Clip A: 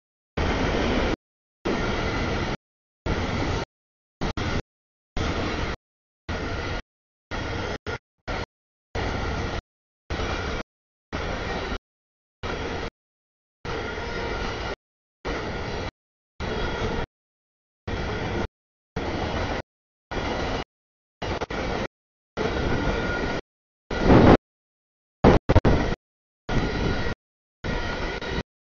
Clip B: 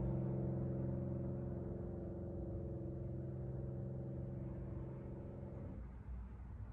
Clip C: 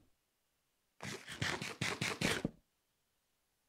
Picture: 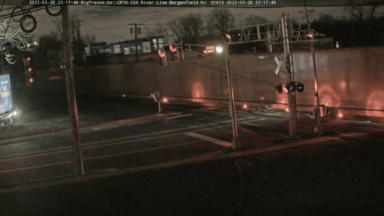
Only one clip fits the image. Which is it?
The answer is A